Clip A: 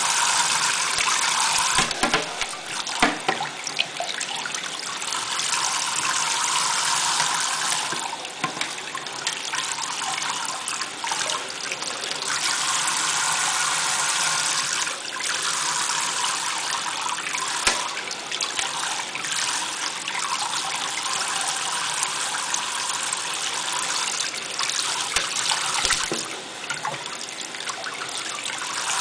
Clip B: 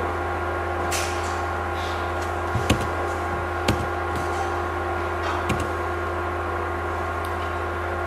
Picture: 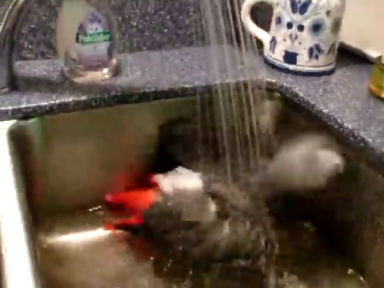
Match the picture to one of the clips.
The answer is A